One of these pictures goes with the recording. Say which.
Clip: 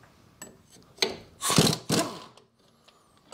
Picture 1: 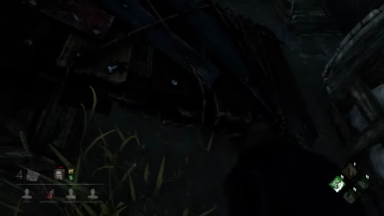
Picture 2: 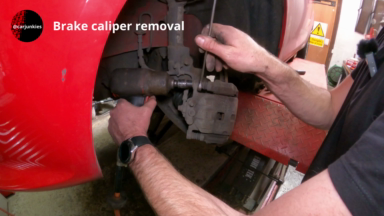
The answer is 2